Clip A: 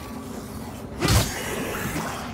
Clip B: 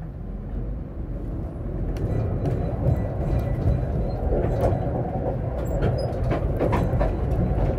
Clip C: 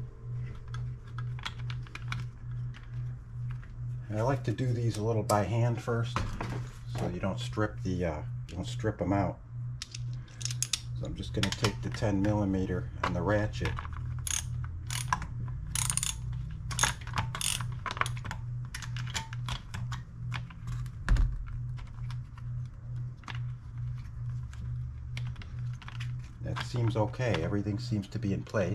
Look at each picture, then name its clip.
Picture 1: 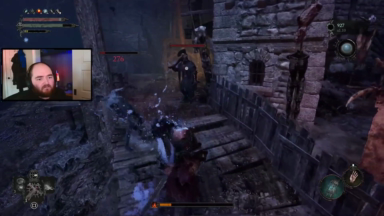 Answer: A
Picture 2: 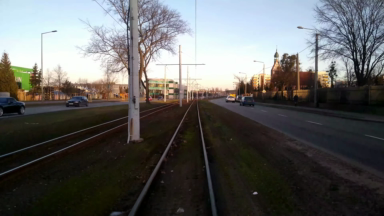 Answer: B